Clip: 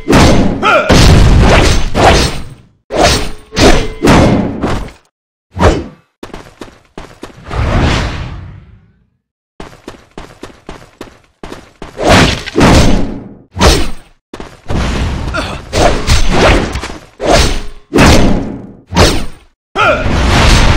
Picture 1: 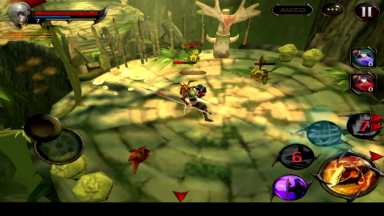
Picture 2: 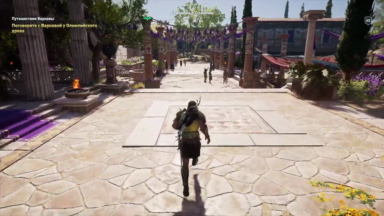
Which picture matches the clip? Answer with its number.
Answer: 1